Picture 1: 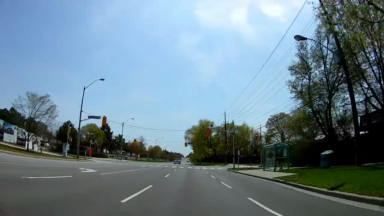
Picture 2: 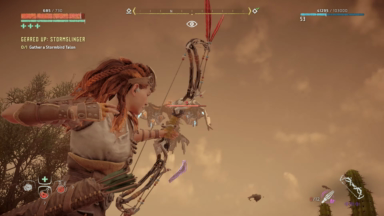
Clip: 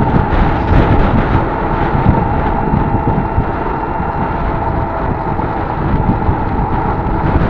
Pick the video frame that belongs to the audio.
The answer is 1